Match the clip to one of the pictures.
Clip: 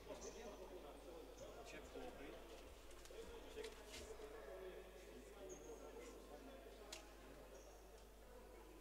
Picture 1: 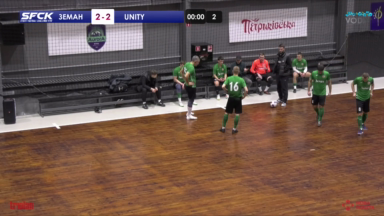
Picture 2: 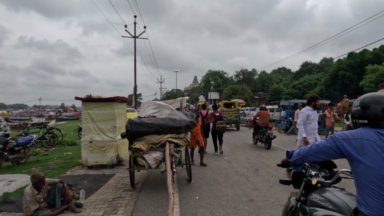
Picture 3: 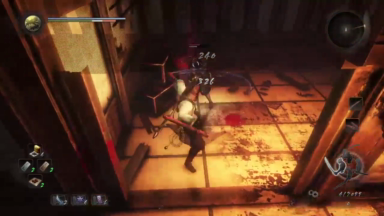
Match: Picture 1